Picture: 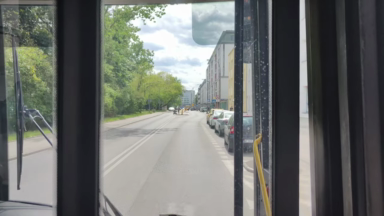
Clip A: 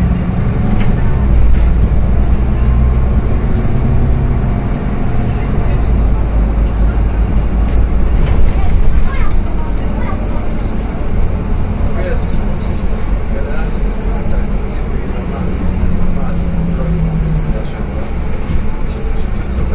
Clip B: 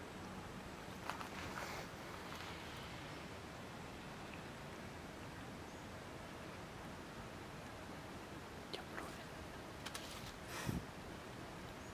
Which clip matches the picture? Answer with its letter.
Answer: A